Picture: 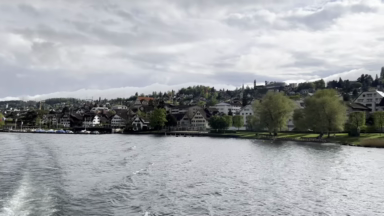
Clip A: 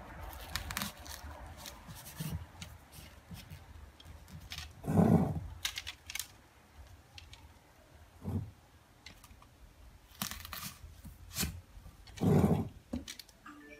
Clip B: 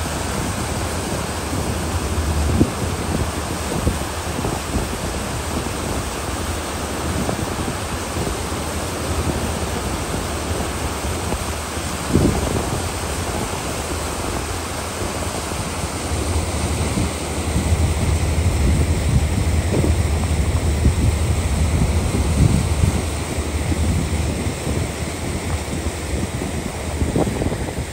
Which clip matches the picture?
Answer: B